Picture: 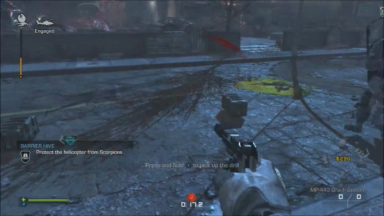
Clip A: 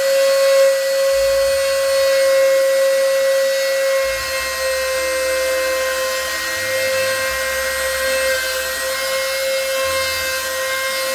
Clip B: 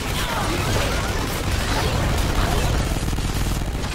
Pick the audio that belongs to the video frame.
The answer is B